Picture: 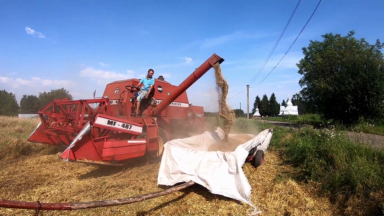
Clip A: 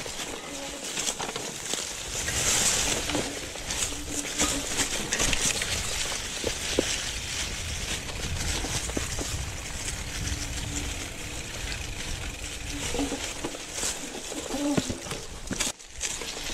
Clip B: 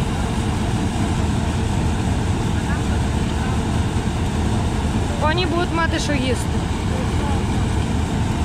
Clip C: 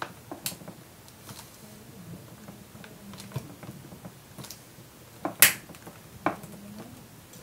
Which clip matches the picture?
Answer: B